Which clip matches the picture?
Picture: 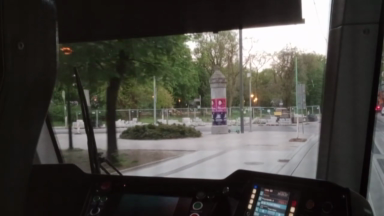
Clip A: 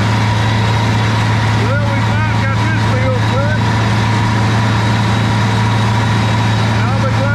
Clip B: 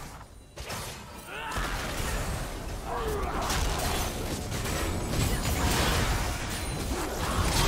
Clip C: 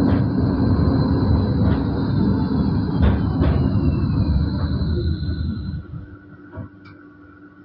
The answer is C